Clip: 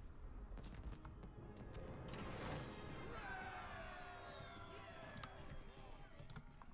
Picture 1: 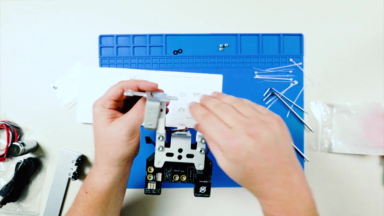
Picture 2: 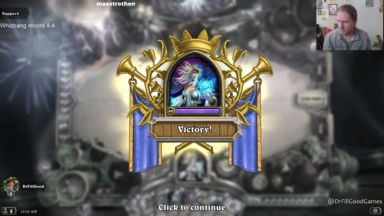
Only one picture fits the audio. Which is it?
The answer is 2